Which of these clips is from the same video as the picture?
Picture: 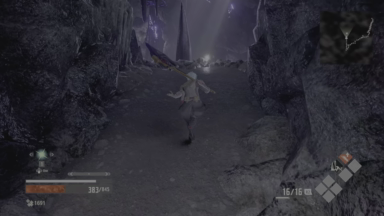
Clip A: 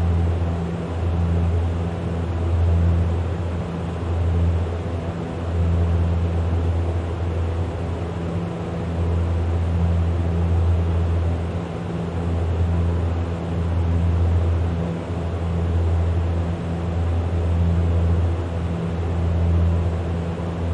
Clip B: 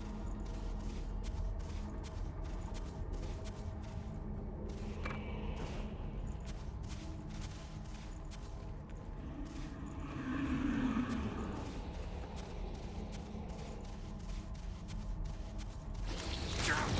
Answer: B